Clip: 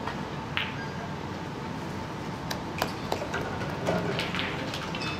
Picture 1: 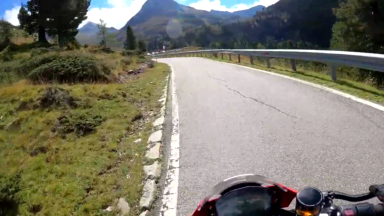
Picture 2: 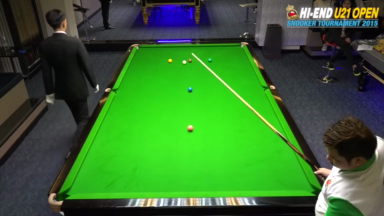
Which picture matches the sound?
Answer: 2